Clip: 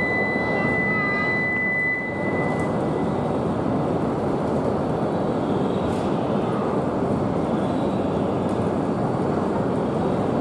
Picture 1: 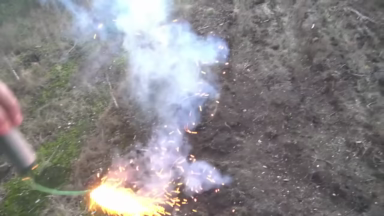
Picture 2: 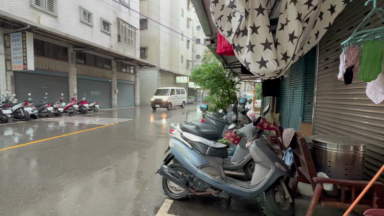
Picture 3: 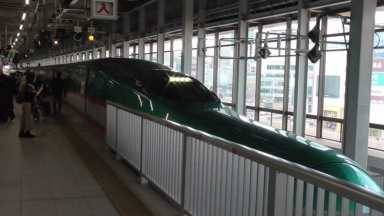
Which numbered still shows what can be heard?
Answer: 3